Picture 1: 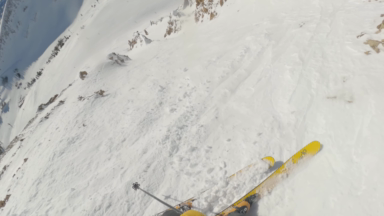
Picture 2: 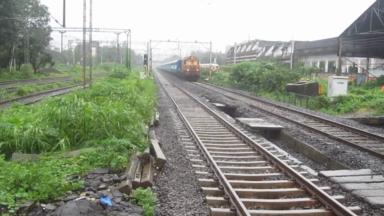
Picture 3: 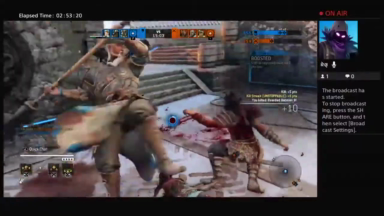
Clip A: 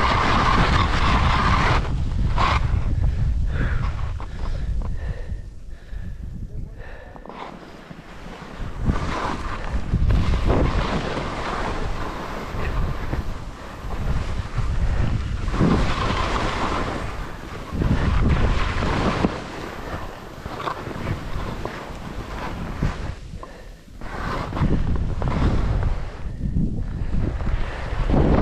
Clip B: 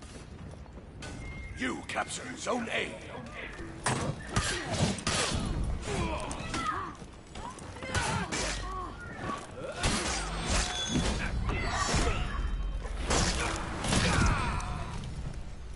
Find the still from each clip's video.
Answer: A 1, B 3